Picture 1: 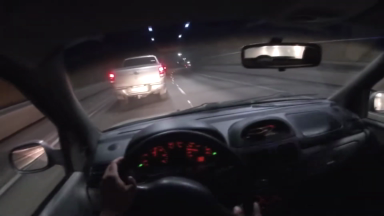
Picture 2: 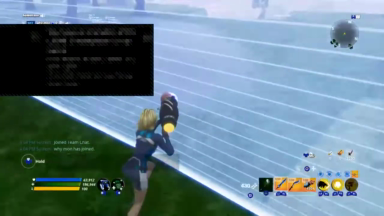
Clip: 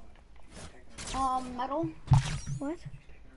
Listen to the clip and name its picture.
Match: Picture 2